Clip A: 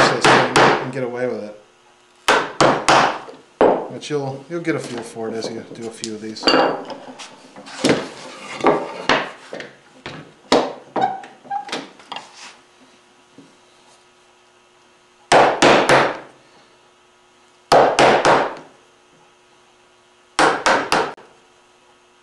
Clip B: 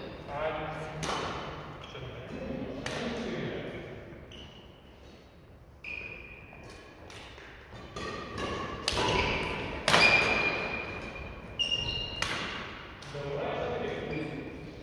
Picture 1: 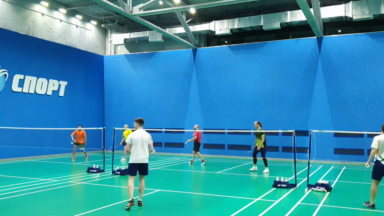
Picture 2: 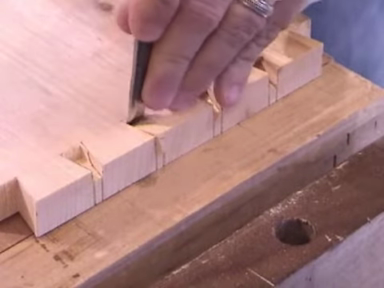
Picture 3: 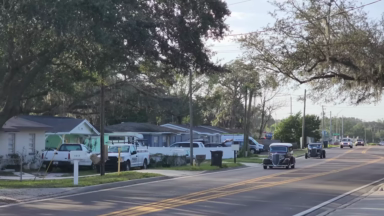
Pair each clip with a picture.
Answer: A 2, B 1